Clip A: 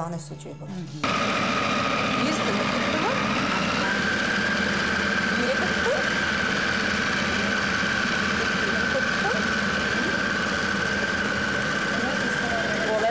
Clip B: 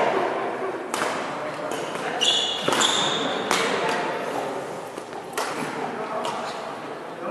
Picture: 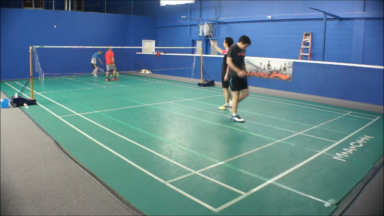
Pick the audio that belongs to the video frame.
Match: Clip B